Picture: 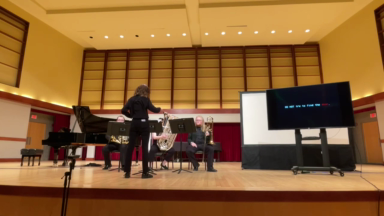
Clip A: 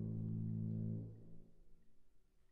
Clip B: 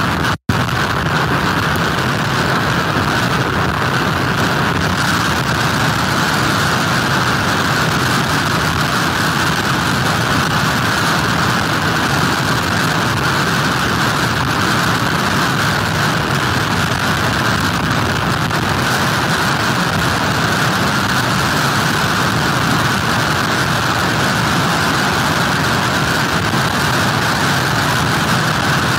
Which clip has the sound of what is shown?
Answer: A